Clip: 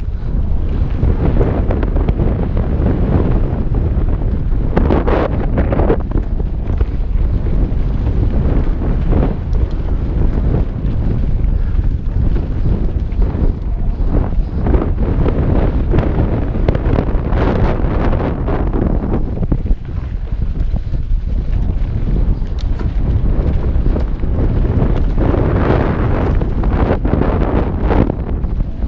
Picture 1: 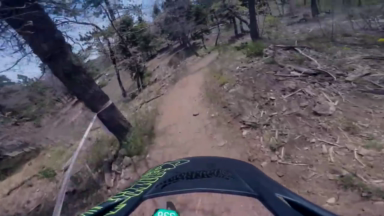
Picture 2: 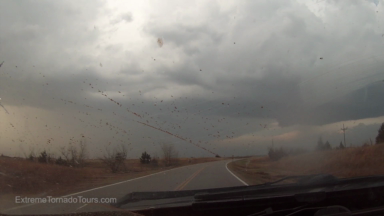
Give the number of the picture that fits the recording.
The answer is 1